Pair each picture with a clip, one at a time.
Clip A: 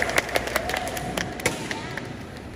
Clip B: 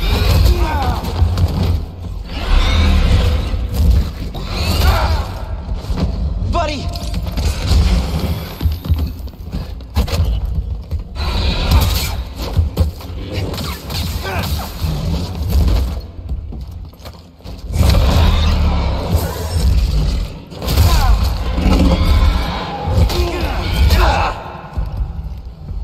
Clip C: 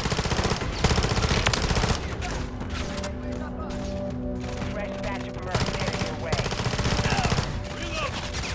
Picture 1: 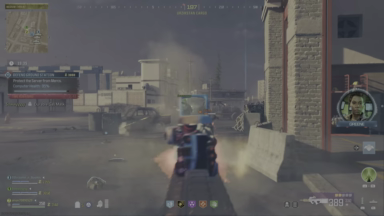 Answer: C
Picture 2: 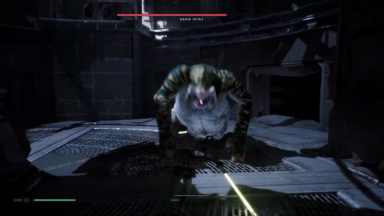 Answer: B